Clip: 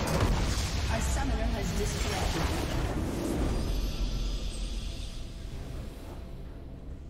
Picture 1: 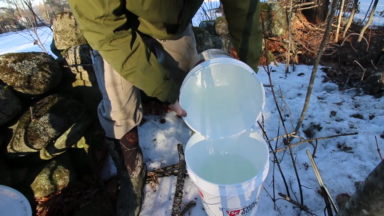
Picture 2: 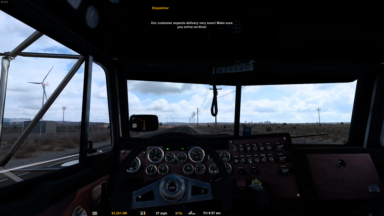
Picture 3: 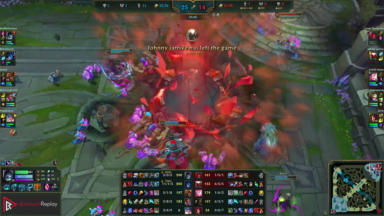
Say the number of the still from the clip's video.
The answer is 3